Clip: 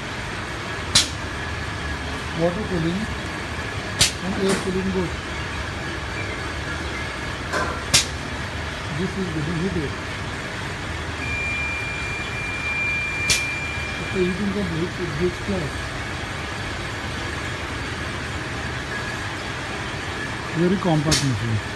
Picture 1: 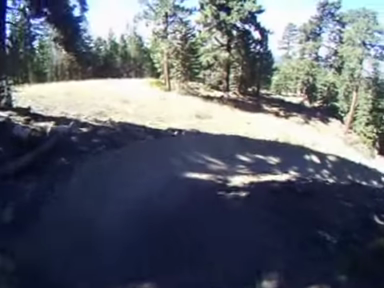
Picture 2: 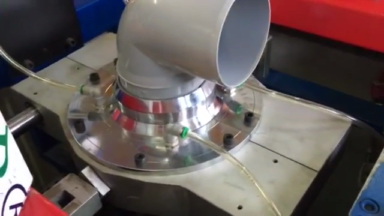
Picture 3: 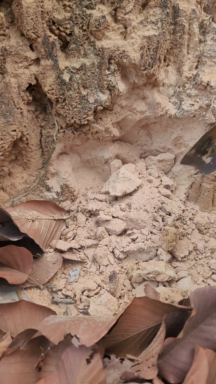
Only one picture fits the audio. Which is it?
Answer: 2